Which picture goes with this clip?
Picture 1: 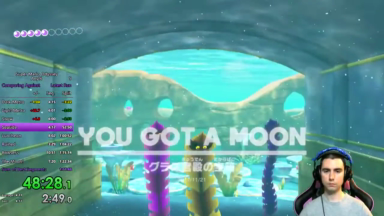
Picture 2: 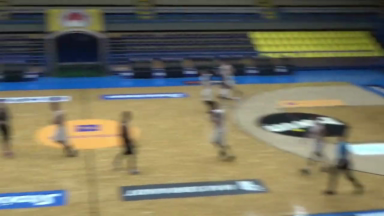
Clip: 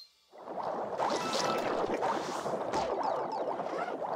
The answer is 1